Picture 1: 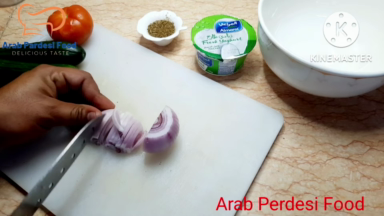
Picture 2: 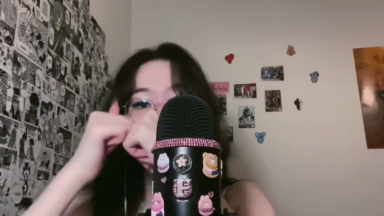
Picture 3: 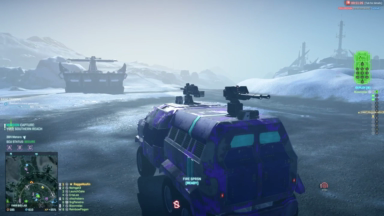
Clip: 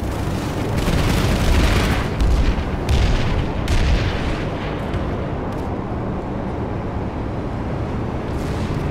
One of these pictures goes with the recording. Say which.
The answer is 3